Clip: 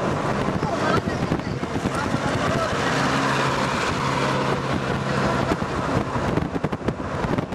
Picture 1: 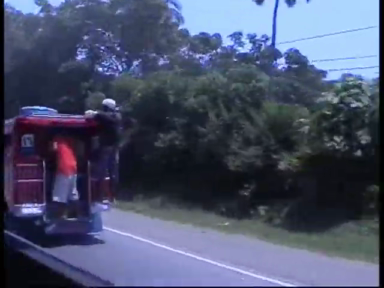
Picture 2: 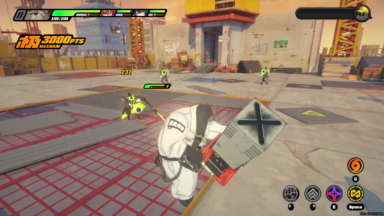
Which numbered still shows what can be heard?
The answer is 1